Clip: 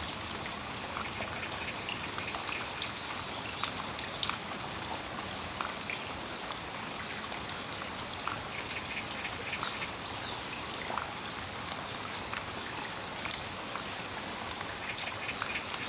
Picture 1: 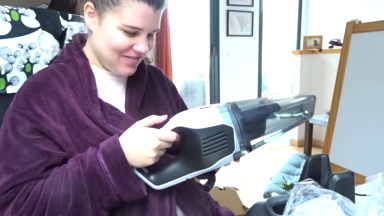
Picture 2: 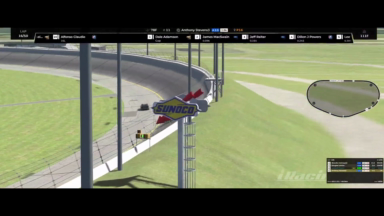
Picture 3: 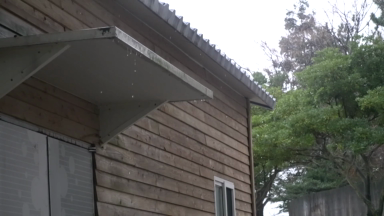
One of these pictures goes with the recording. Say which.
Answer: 3